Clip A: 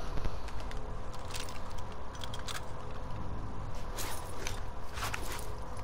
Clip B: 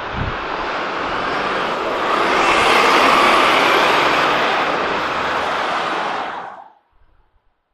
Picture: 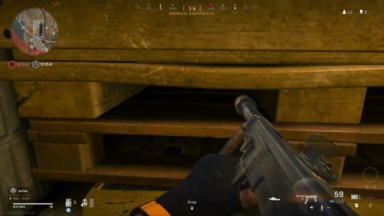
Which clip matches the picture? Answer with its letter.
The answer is A